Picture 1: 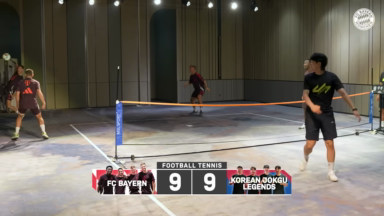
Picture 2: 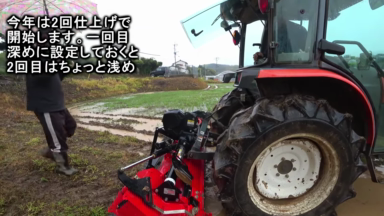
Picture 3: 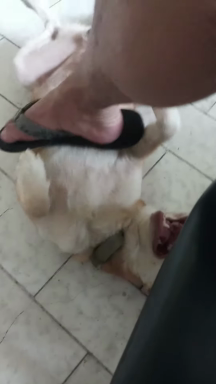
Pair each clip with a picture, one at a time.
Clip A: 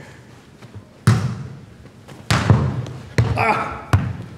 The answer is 1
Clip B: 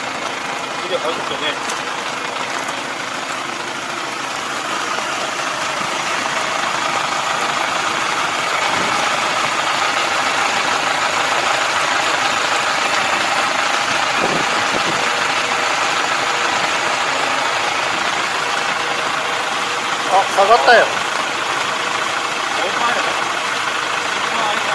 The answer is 2